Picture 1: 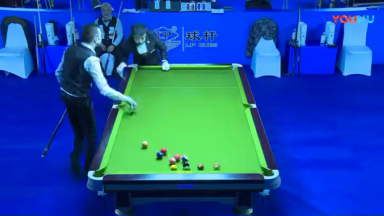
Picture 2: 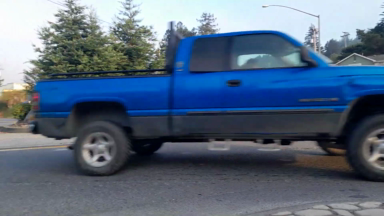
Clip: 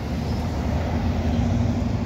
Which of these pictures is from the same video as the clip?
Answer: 2